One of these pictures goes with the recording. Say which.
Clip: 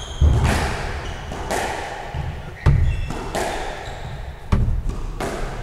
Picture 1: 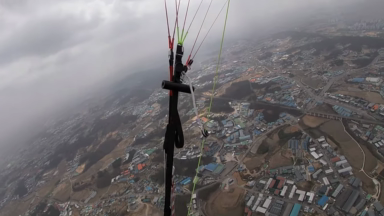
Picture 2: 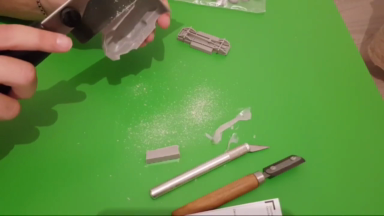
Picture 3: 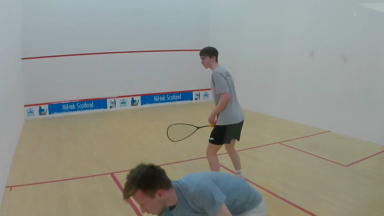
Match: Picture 3